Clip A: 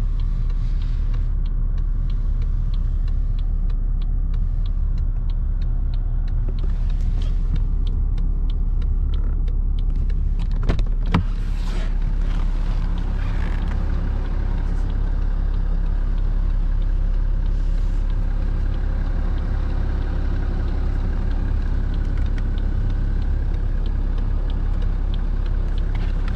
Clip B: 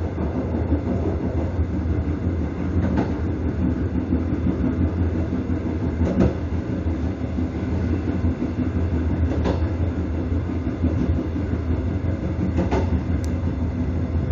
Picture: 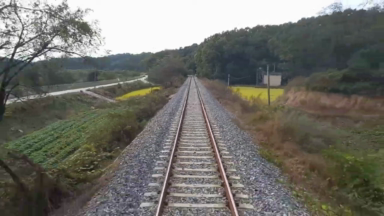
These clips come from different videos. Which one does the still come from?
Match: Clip B